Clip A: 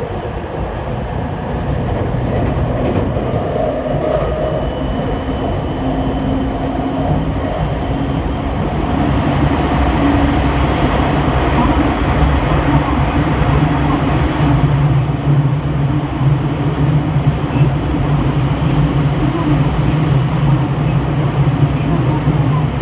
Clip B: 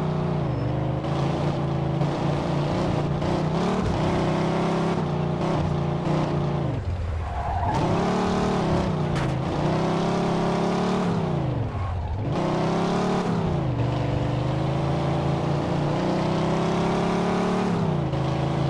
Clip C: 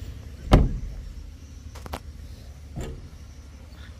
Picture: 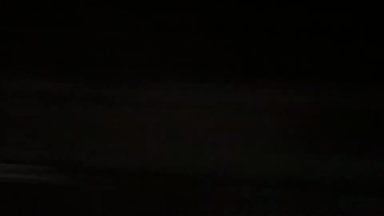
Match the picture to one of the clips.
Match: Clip A